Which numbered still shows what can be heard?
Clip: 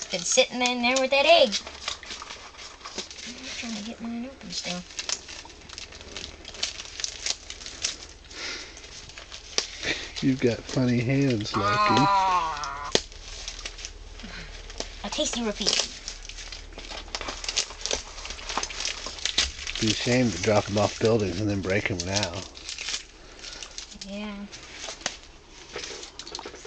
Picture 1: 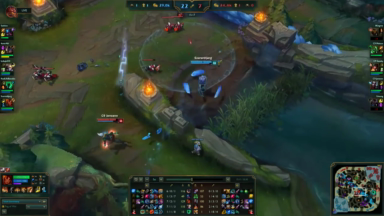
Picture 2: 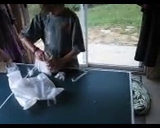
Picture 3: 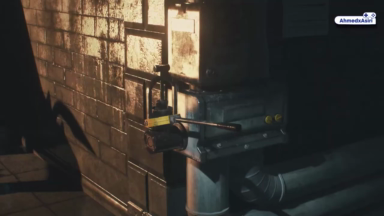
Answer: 2